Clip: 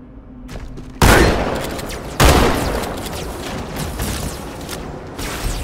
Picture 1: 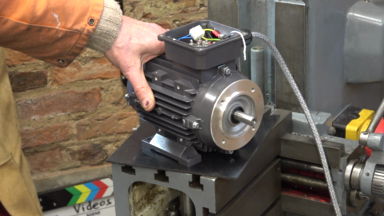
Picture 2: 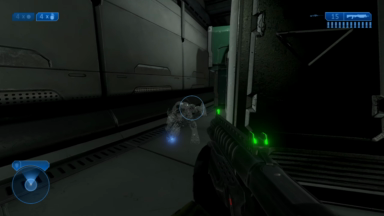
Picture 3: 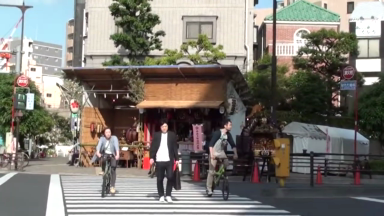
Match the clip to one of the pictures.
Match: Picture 2